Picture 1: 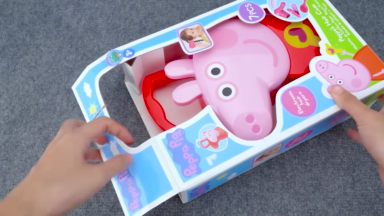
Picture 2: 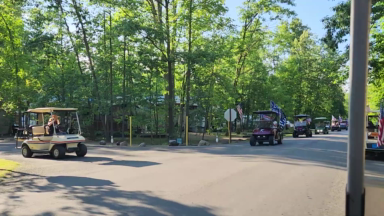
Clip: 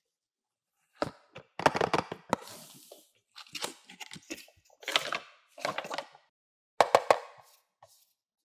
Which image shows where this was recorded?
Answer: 1